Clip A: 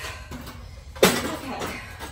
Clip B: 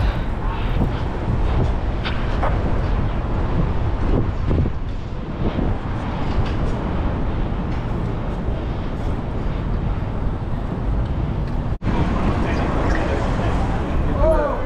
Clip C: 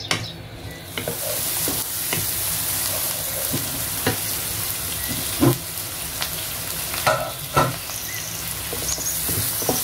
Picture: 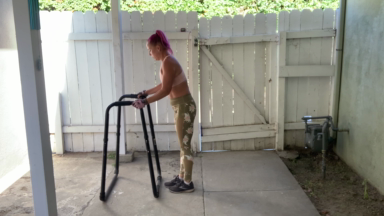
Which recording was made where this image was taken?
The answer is A